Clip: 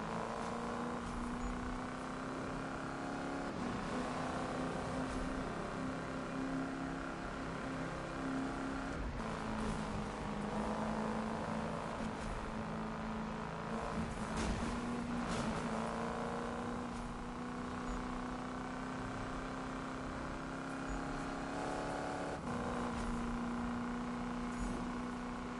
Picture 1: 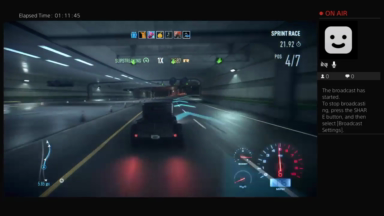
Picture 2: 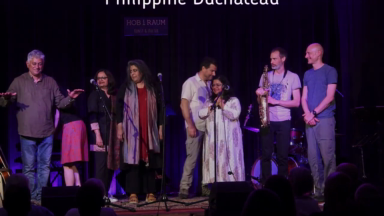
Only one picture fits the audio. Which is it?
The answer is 1